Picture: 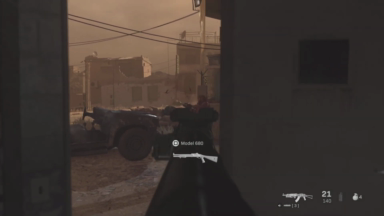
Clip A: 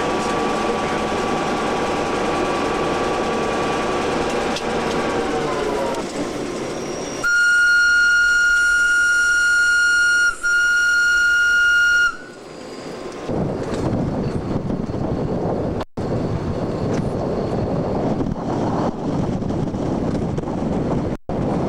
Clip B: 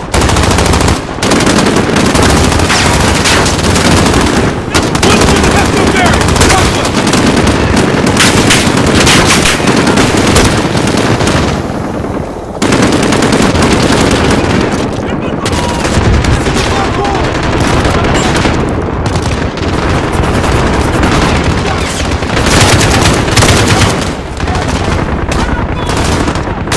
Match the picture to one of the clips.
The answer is B